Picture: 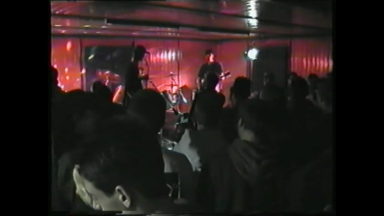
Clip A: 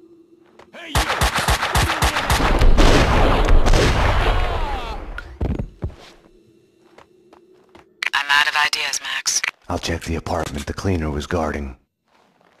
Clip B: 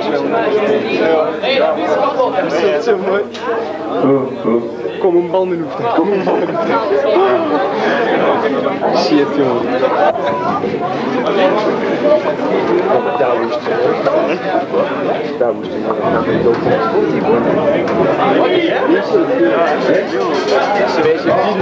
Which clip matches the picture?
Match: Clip B